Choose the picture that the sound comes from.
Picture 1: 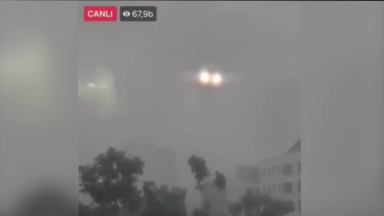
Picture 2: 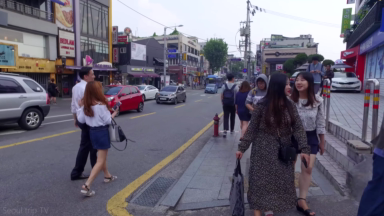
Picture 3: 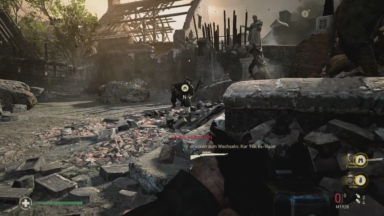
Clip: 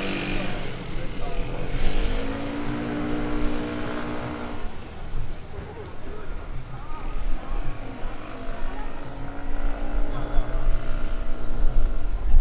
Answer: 2